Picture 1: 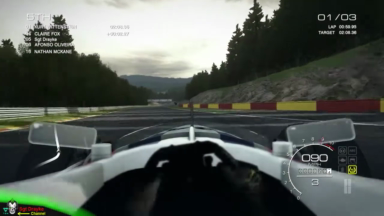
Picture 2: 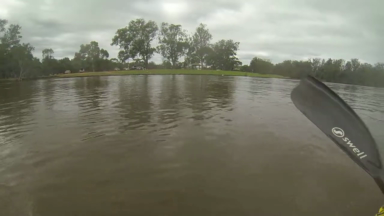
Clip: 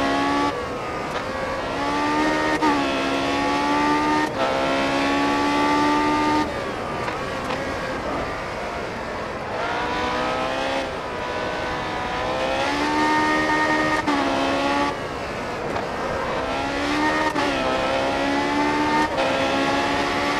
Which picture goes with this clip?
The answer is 1